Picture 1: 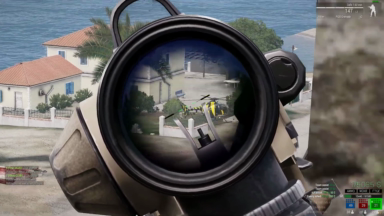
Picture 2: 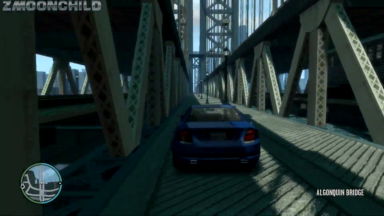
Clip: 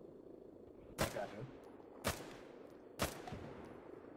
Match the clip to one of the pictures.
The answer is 1